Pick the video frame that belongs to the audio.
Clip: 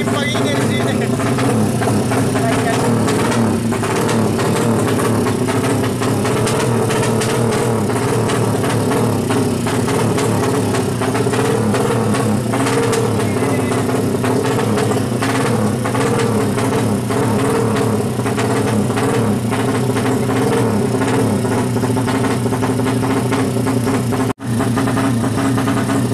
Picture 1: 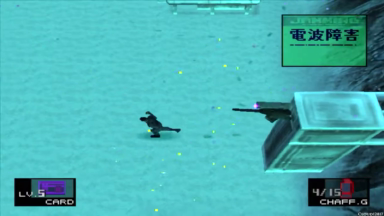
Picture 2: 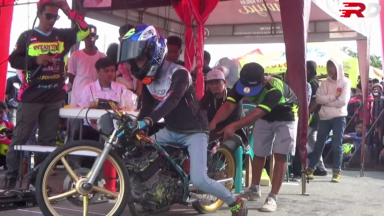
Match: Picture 2